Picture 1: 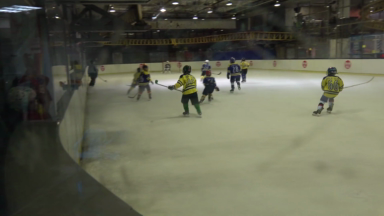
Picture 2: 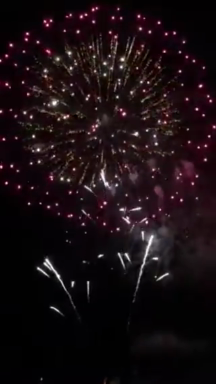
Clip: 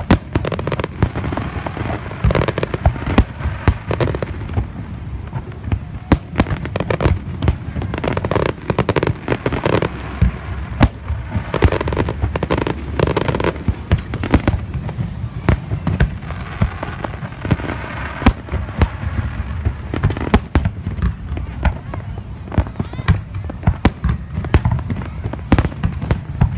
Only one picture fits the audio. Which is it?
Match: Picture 2